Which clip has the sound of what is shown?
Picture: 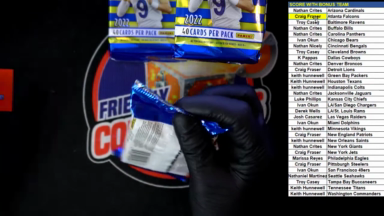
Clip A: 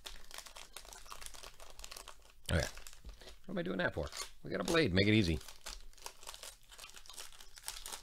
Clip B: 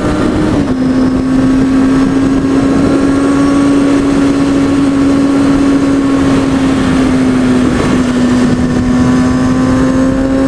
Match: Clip A